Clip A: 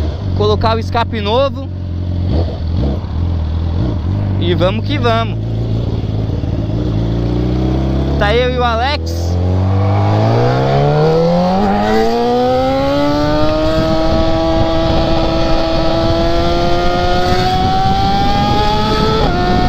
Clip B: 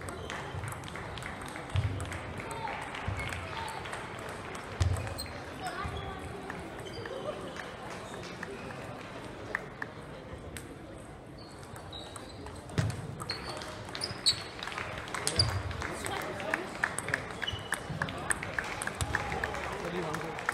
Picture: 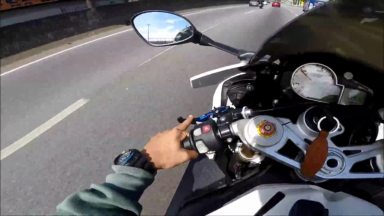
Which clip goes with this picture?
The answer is A